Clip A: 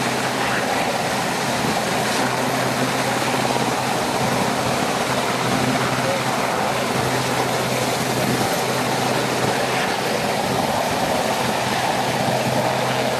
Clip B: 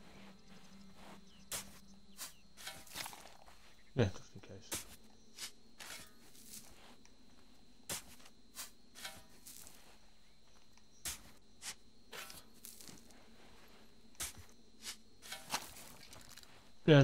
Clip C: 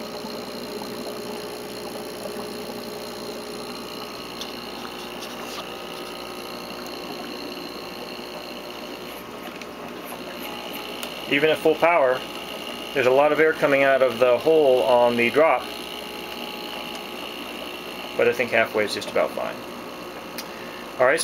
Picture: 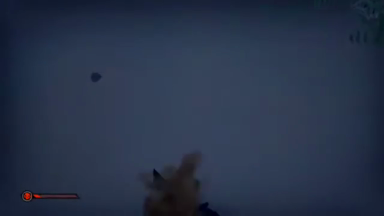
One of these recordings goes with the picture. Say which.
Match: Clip B